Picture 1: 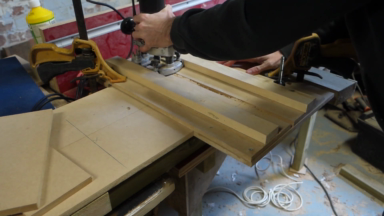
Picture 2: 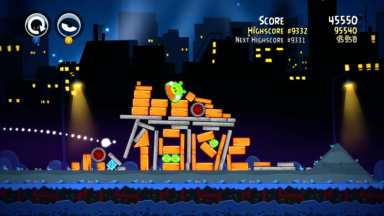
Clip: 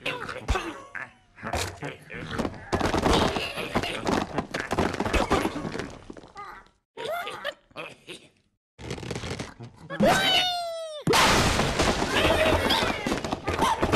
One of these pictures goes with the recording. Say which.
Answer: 2